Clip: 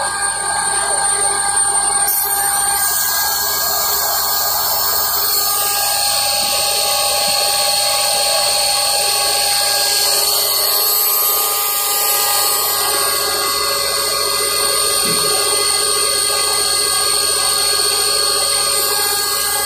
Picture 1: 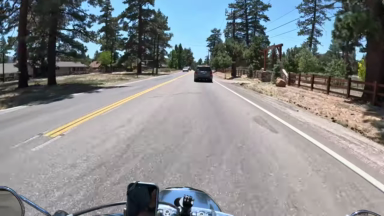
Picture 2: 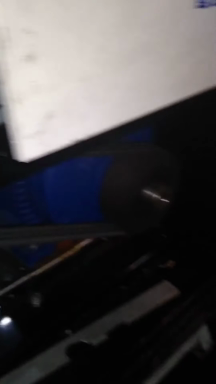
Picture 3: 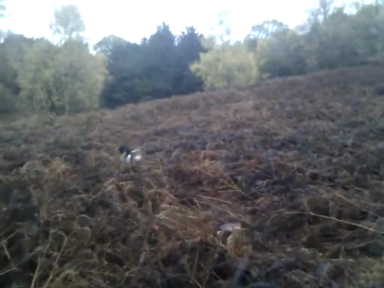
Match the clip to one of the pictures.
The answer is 2